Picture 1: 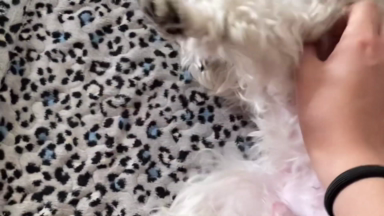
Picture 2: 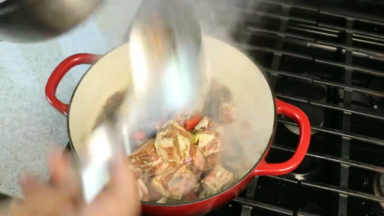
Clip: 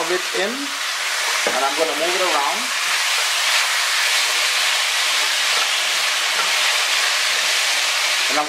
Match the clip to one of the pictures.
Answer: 2